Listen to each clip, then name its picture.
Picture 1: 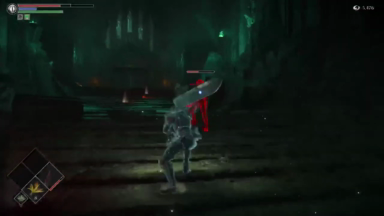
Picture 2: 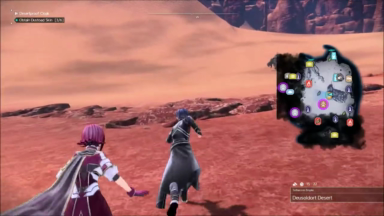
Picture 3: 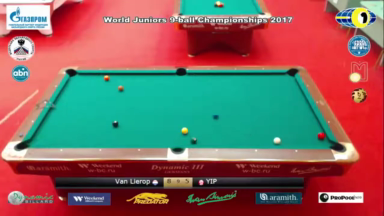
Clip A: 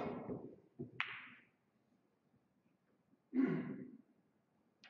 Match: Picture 3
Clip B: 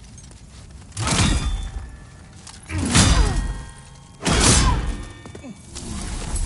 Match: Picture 1